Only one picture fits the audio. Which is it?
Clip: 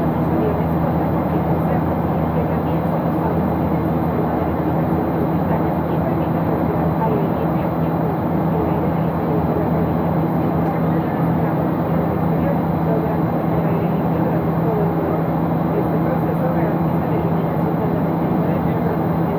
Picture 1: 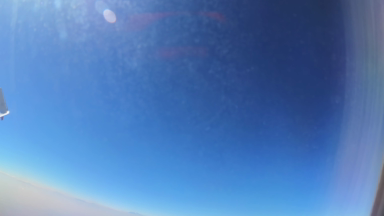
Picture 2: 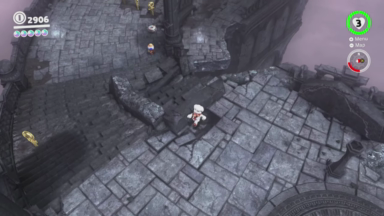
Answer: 1